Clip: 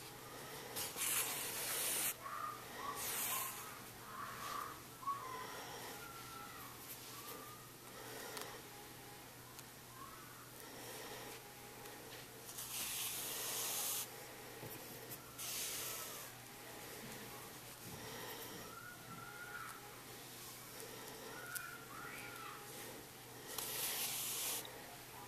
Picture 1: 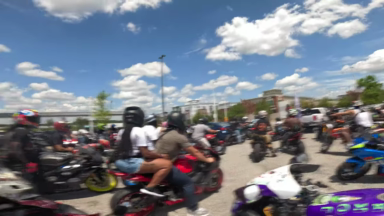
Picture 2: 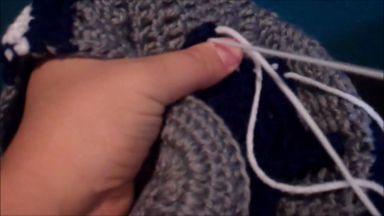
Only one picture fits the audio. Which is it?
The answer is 2